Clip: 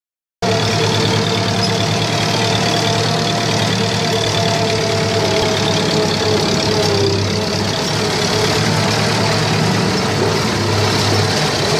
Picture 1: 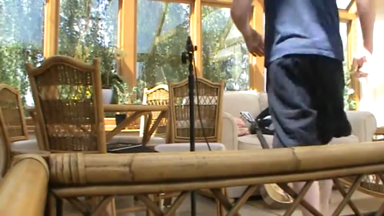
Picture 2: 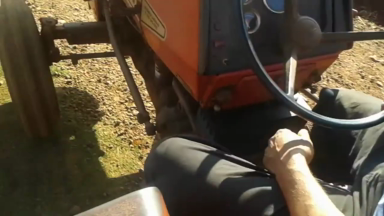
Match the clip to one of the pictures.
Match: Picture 2